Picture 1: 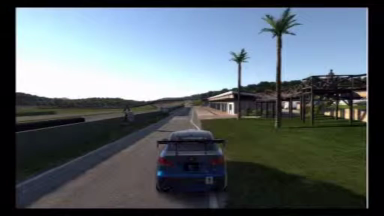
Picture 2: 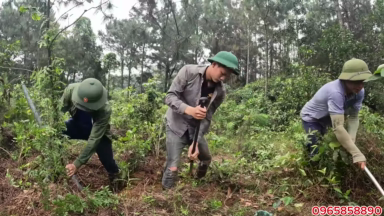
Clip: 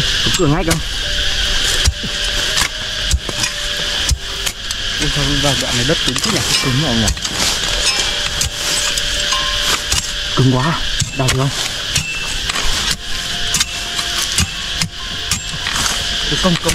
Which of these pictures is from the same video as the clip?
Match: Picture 2